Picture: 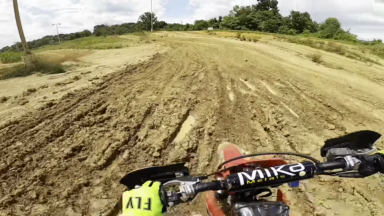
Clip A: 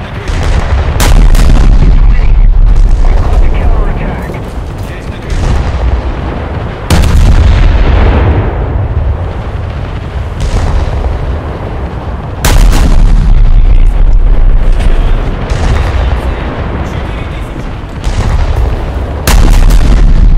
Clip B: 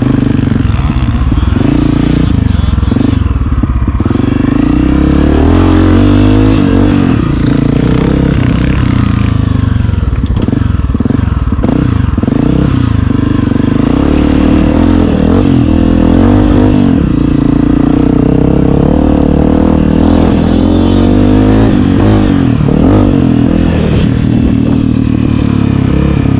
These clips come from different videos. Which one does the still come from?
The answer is B